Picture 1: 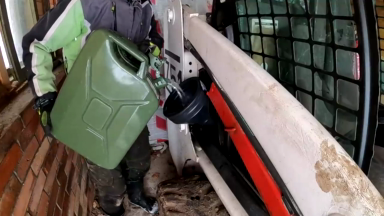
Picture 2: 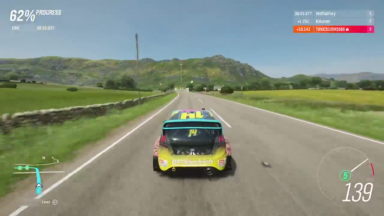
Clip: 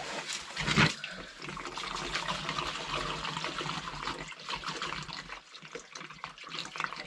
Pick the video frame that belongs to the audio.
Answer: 1